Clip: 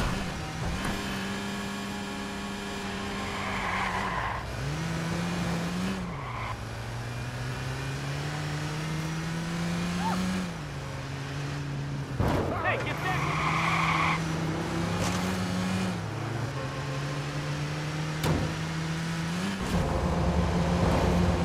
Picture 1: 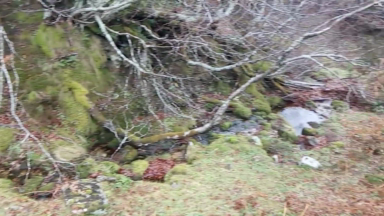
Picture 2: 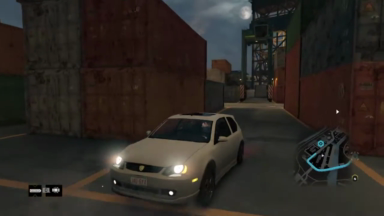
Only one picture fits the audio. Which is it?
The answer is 2